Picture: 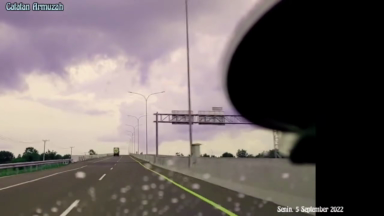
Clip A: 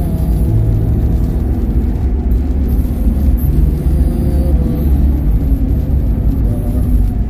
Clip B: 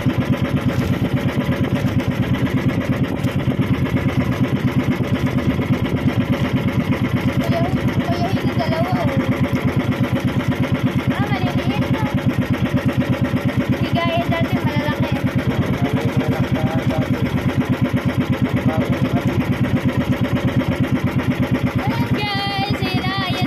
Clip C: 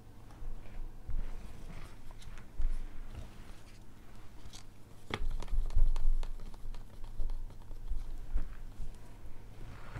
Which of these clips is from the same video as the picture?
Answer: A